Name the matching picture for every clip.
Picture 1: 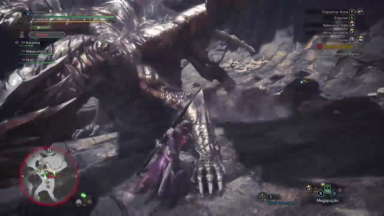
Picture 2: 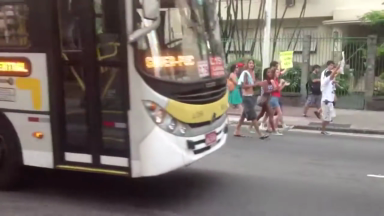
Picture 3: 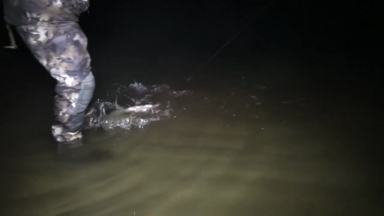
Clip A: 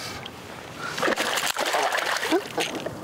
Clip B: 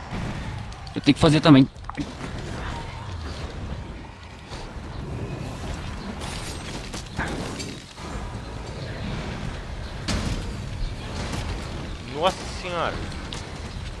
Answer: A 3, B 1